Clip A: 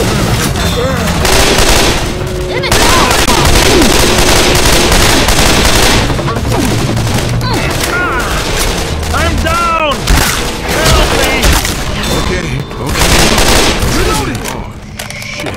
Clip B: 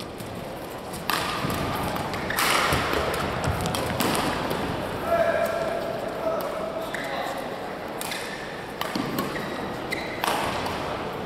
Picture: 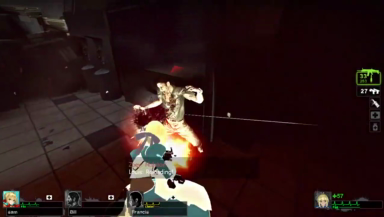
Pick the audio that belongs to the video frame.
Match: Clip A